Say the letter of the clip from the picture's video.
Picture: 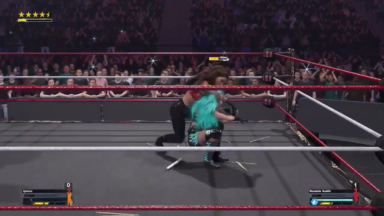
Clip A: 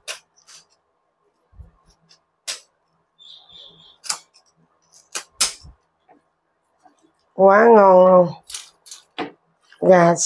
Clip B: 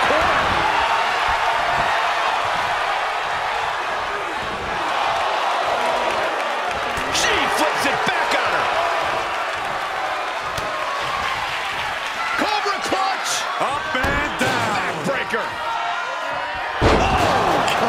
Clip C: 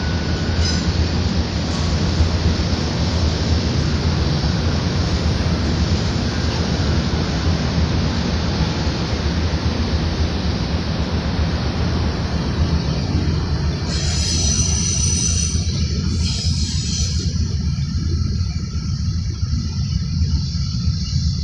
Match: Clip B